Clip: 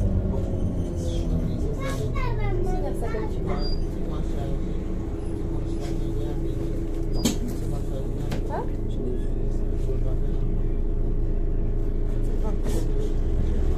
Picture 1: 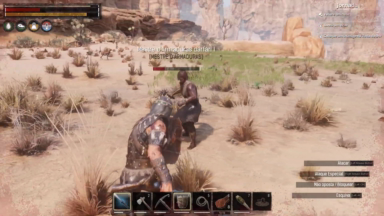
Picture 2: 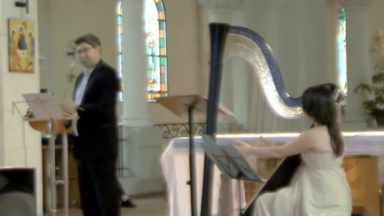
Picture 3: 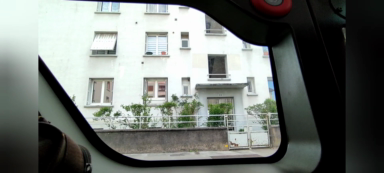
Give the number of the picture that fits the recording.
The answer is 3